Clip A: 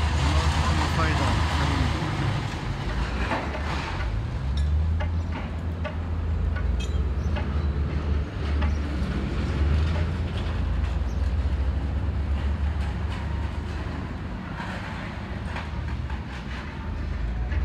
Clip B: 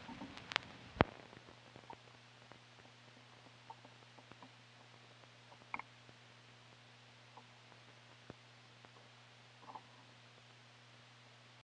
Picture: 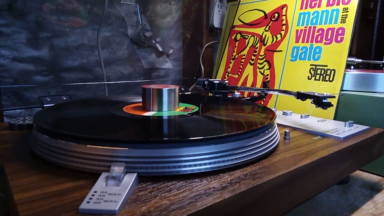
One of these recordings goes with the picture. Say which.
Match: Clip B